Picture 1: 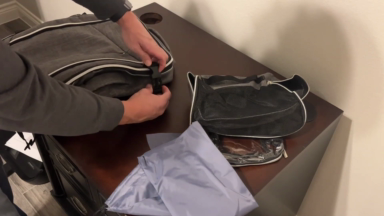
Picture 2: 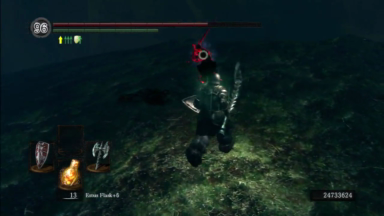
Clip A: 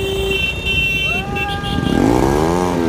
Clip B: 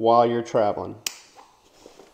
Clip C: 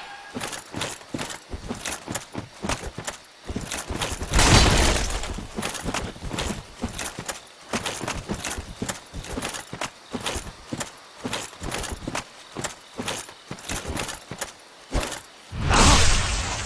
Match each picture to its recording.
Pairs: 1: B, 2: C